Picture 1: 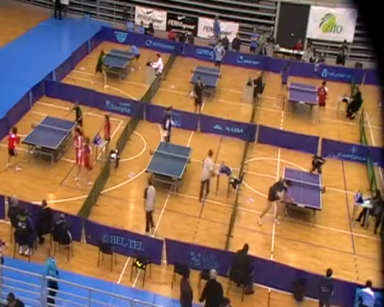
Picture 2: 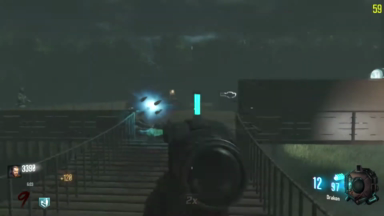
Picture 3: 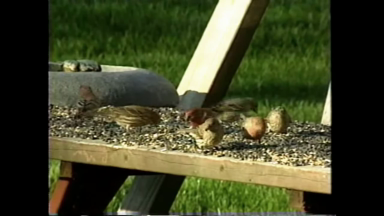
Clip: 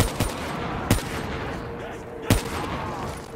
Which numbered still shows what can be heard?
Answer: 2